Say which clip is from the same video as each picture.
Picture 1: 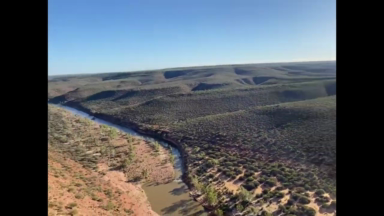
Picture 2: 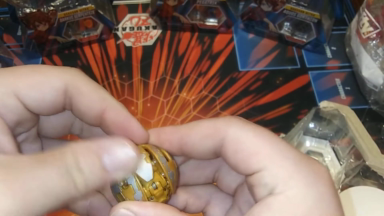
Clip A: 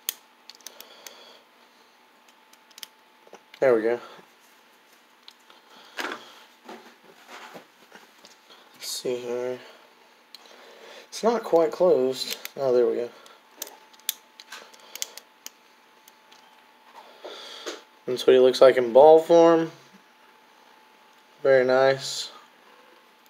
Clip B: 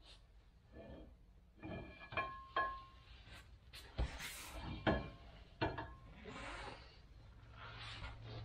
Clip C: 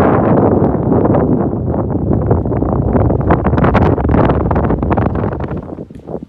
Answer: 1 C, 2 A